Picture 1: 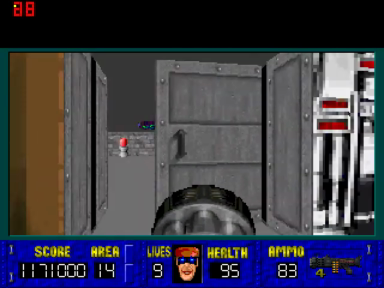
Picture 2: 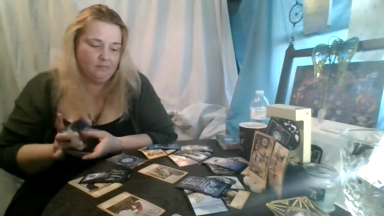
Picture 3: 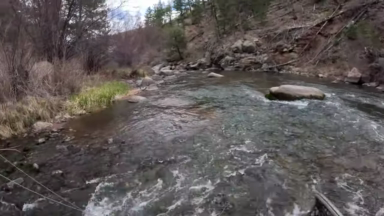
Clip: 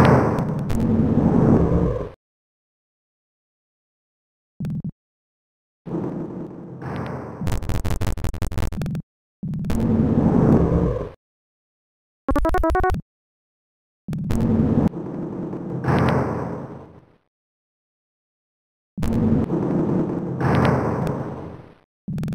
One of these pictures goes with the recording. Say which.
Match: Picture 1